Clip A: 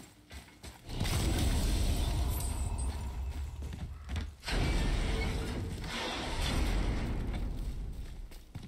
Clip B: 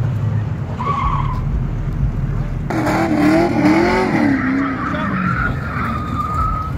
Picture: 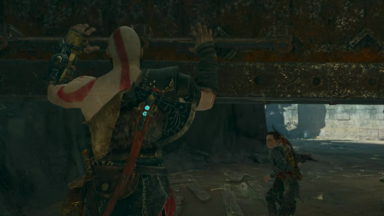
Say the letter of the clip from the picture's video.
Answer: A